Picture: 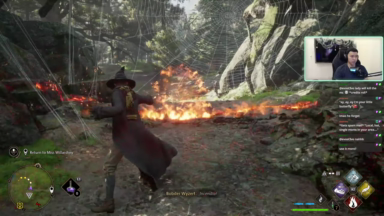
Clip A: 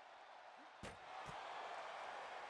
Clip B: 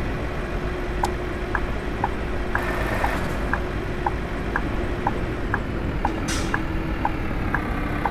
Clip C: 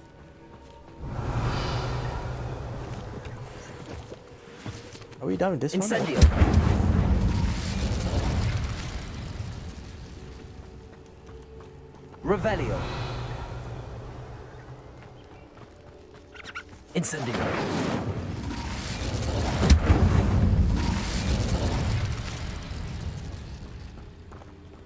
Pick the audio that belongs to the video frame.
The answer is C